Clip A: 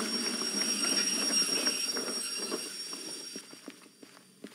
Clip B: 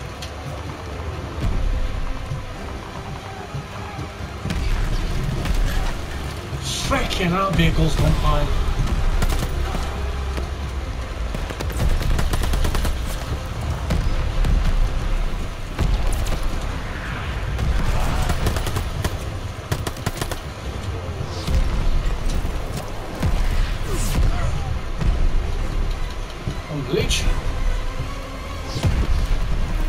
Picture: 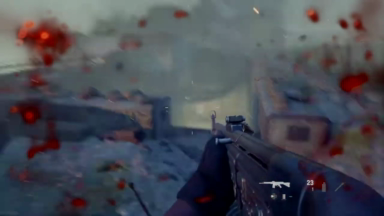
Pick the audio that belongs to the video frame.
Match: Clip B